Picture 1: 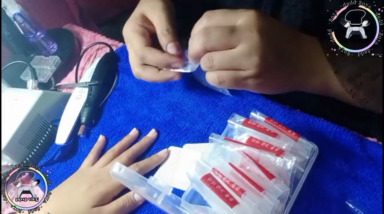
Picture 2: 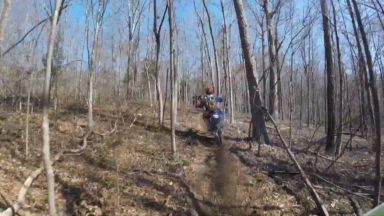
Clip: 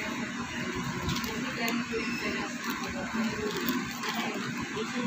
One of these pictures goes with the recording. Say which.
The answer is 1